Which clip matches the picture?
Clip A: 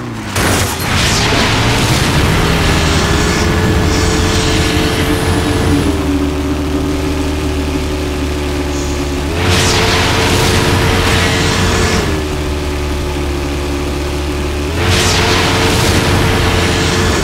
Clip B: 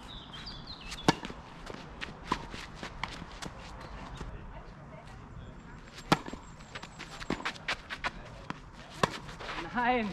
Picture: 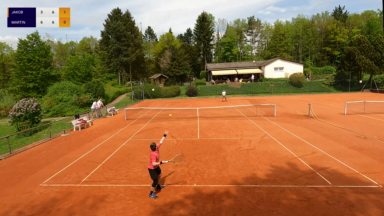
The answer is B